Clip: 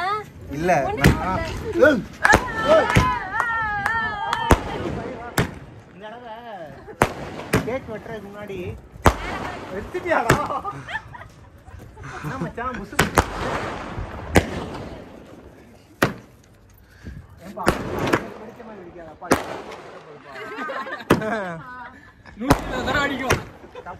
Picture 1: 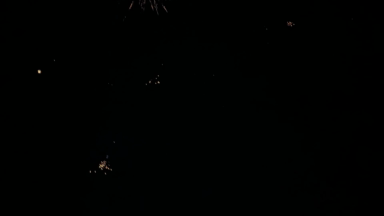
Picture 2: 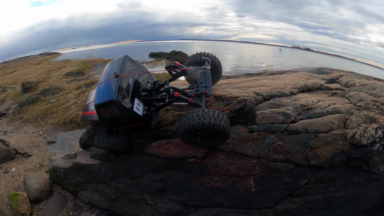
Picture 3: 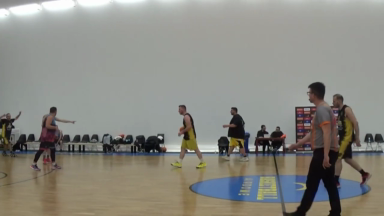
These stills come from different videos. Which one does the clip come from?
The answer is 1